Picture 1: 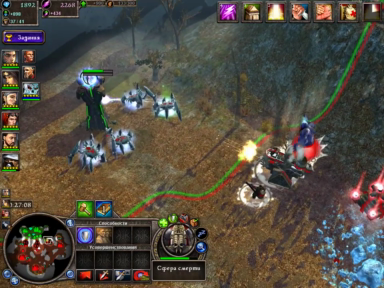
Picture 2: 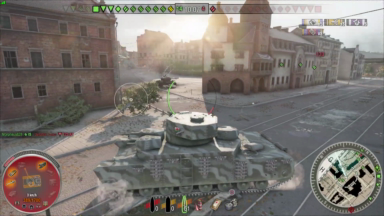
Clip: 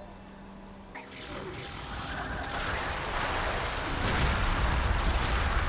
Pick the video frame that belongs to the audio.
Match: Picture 1